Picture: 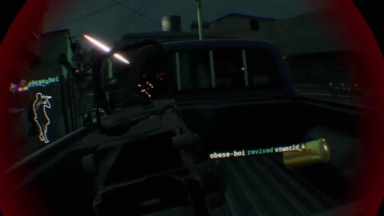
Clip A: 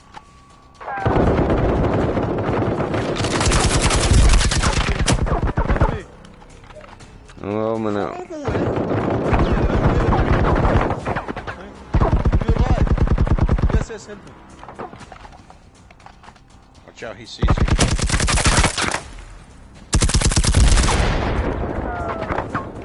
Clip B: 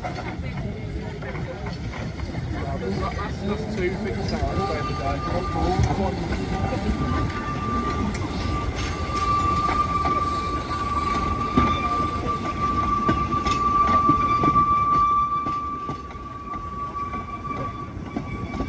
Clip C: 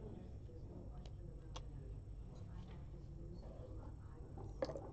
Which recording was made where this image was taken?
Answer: A